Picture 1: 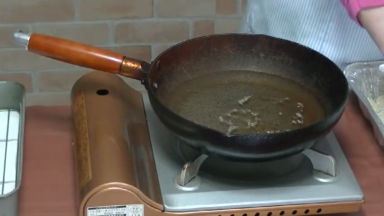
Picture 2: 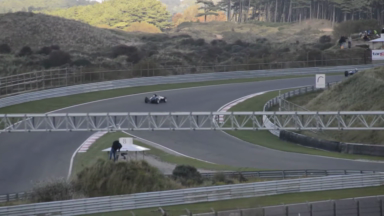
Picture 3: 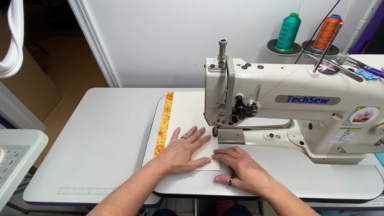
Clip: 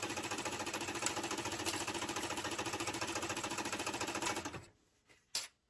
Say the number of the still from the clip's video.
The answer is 3